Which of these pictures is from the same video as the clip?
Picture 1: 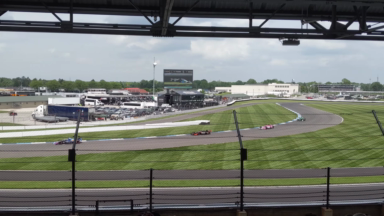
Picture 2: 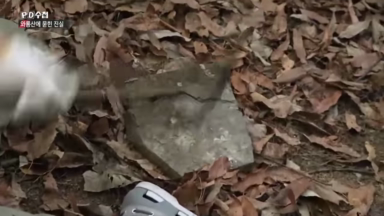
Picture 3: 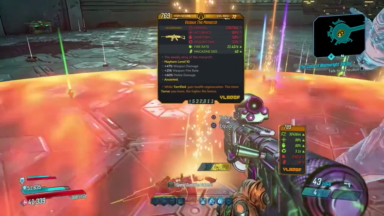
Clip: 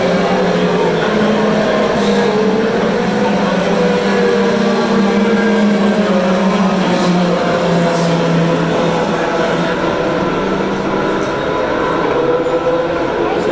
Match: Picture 1